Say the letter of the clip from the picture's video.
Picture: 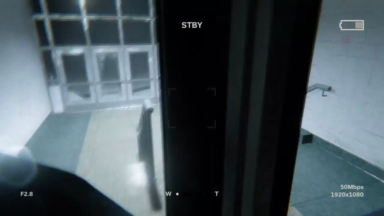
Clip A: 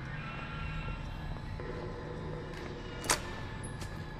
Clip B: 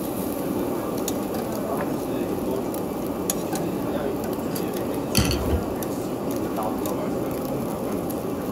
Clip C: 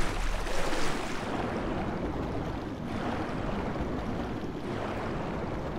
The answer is A